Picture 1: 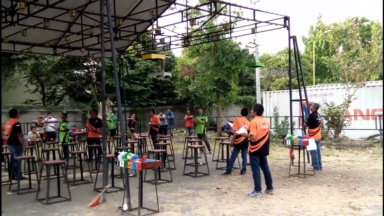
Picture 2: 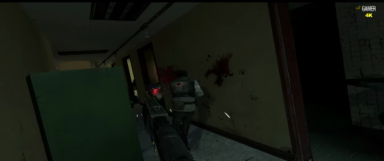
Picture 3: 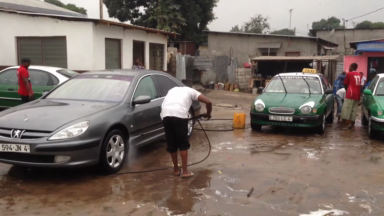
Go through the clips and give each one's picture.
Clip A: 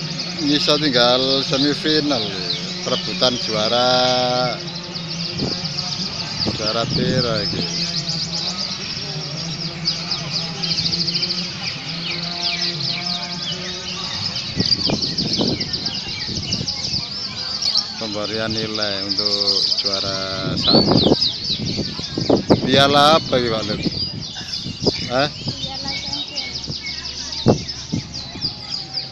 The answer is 1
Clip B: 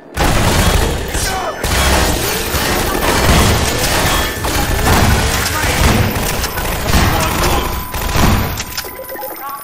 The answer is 2